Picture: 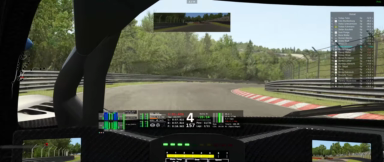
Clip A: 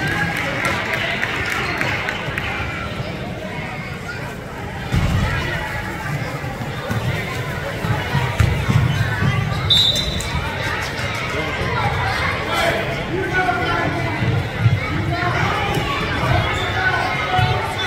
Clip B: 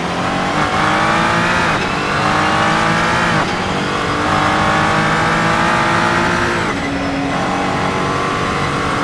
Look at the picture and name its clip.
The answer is B